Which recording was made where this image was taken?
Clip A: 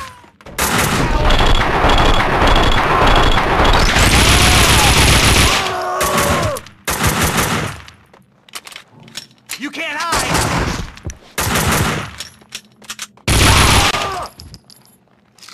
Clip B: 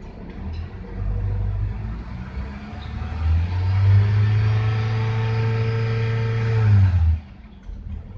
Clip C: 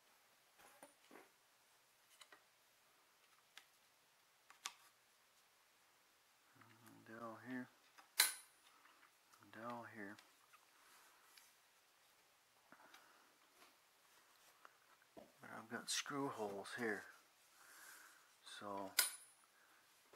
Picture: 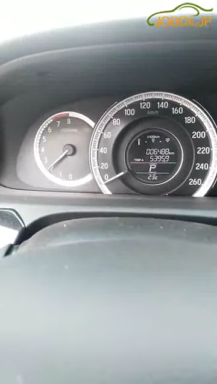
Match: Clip B